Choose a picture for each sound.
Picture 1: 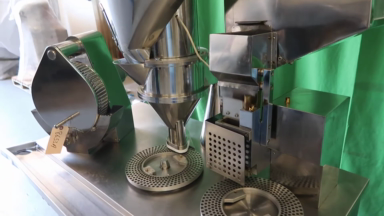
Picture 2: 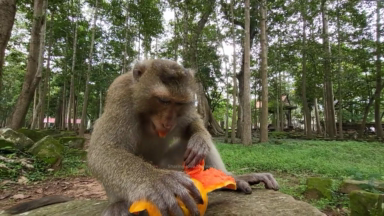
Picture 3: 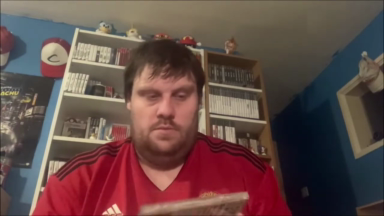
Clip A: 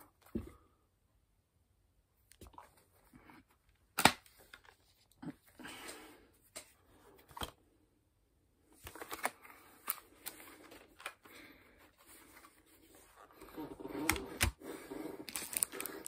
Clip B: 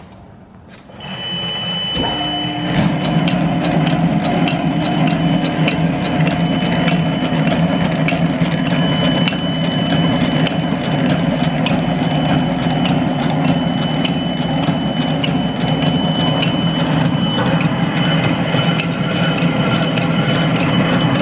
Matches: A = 3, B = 1